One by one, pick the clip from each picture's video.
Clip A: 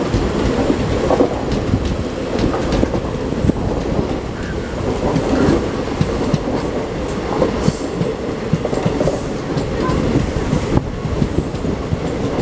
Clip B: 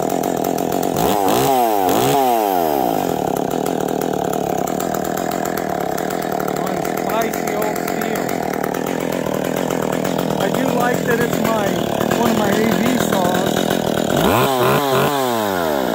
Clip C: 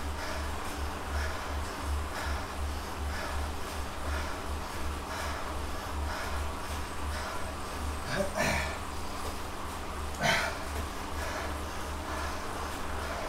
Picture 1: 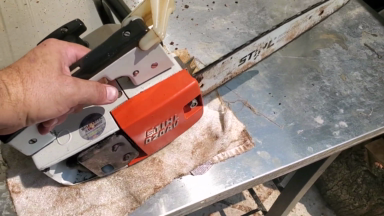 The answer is B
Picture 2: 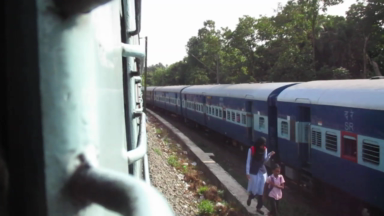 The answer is A